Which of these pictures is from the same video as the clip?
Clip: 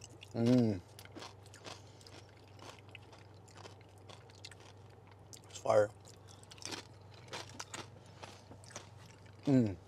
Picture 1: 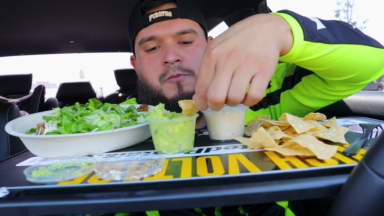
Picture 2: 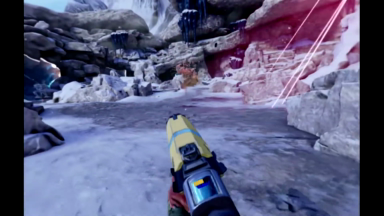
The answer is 1